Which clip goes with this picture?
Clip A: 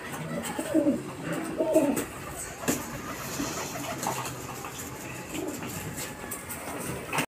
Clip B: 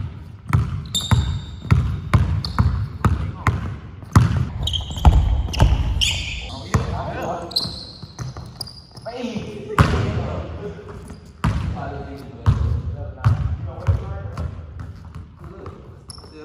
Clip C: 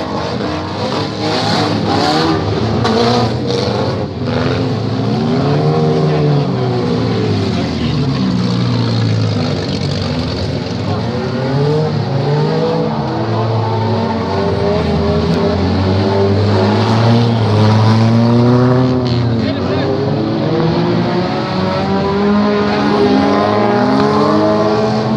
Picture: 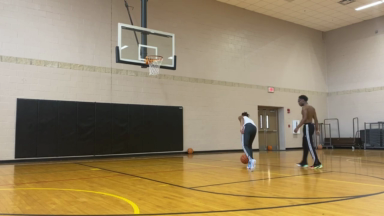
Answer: B